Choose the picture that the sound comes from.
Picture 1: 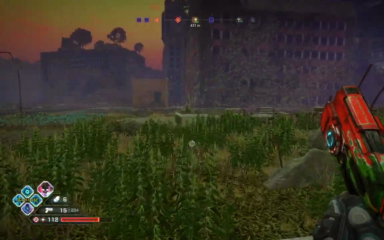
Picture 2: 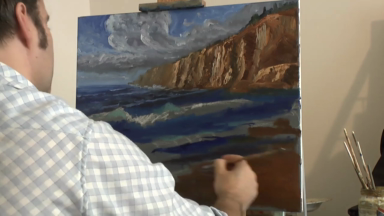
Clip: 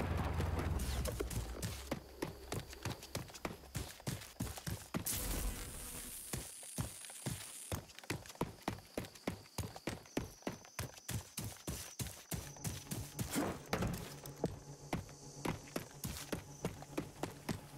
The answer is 1